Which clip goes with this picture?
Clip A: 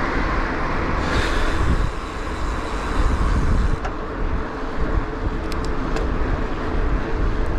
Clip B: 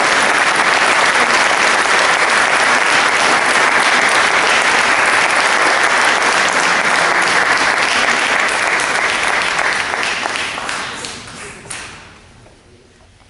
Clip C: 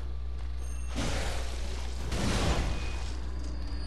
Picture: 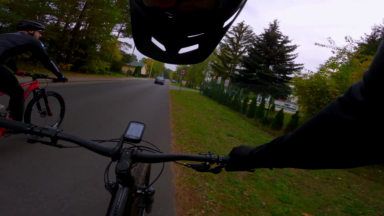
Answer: A